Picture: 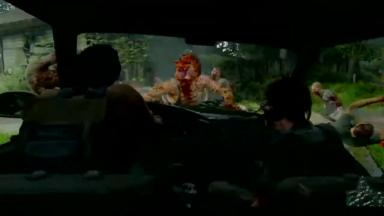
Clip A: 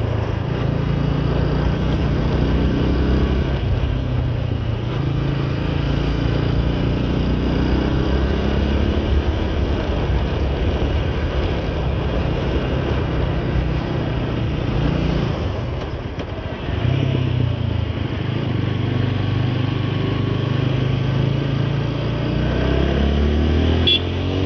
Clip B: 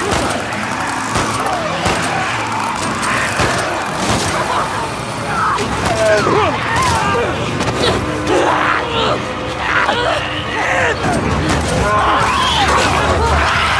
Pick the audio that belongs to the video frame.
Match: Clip B